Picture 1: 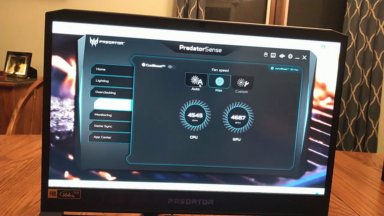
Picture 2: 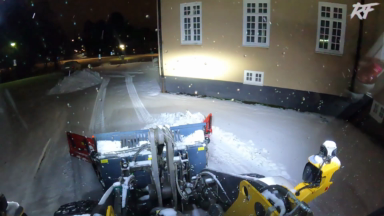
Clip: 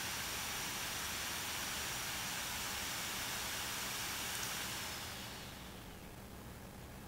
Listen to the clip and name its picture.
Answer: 1